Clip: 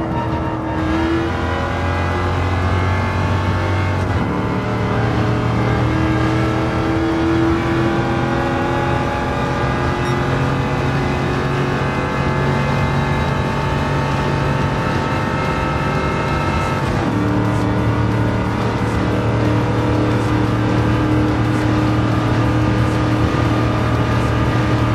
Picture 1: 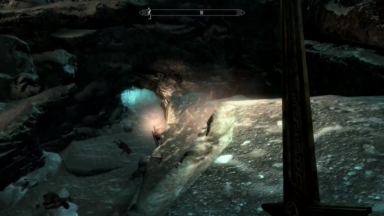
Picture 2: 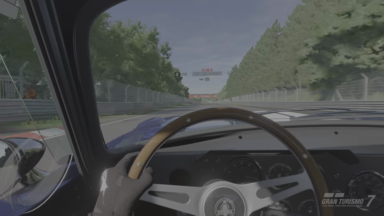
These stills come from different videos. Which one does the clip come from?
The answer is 2